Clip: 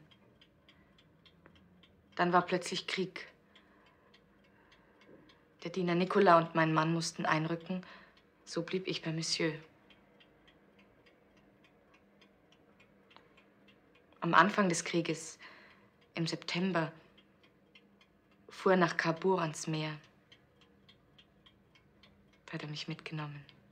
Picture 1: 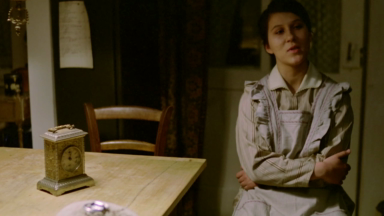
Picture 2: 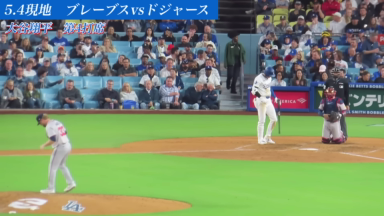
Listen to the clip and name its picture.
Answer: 1